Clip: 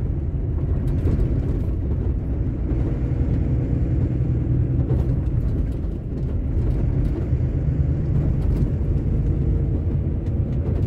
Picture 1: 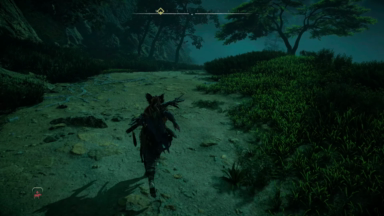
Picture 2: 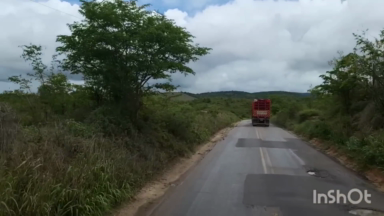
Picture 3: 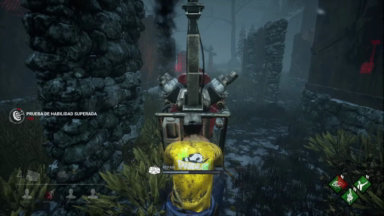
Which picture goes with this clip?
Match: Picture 2